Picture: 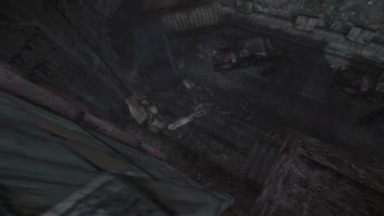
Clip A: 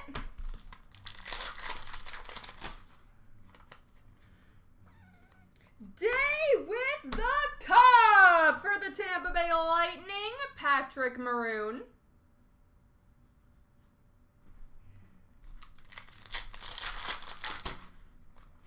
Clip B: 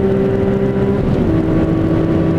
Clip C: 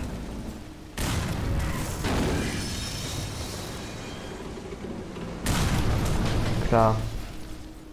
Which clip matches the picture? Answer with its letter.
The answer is C